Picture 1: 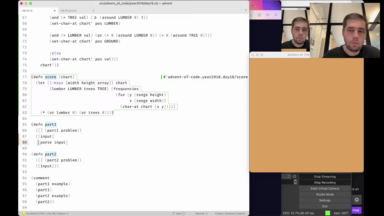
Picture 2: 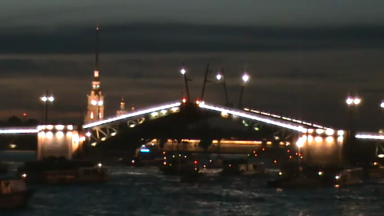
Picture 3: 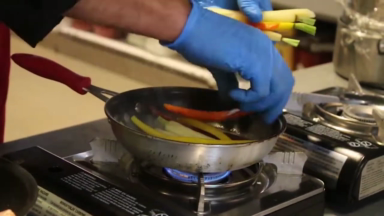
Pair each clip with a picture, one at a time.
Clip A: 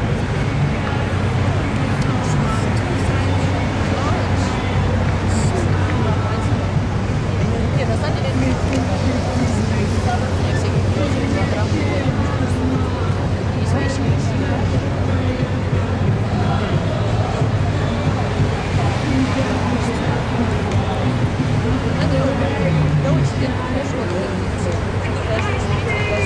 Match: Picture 2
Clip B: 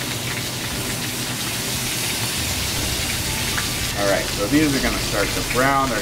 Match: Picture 3